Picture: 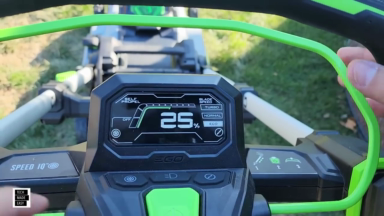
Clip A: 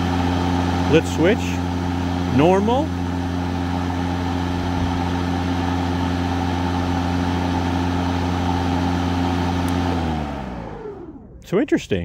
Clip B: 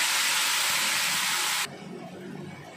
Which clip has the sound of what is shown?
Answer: A